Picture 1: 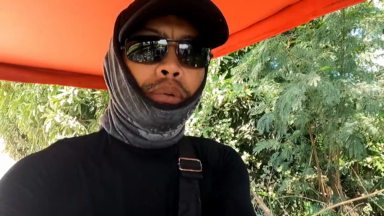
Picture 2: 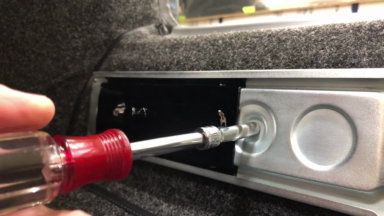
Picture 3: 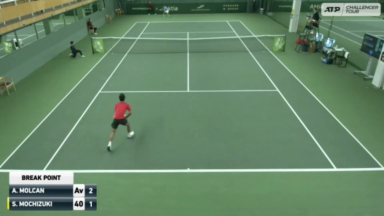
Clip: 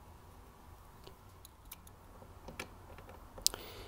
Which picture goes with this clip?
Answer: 2